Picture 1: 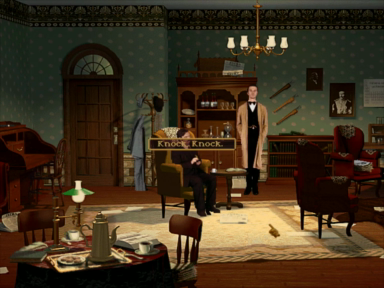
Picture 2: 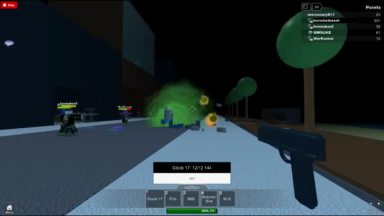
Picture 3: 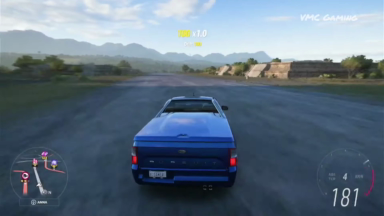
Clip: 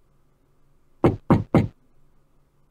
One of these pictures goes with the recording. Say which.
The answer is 1